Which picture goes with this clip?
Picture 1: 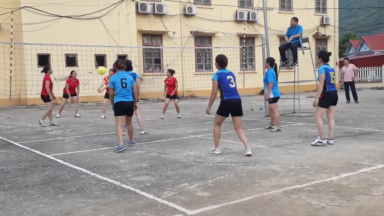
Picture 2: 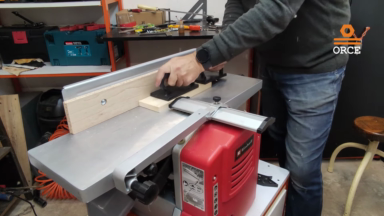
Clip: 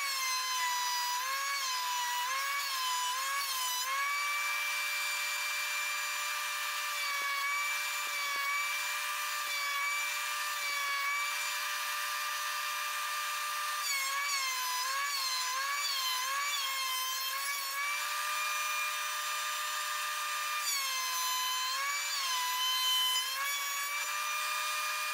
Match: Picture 2